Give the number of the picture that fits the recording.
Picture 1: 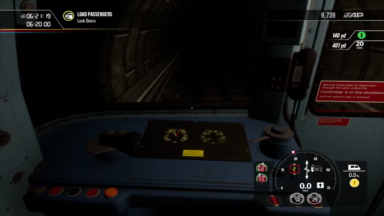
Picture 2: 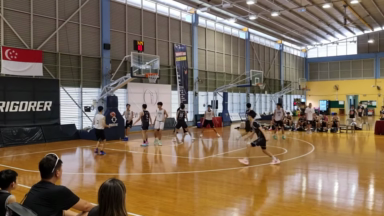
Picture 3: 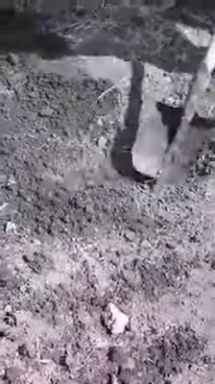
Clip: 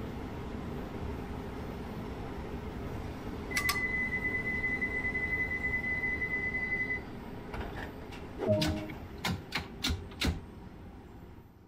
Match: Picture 1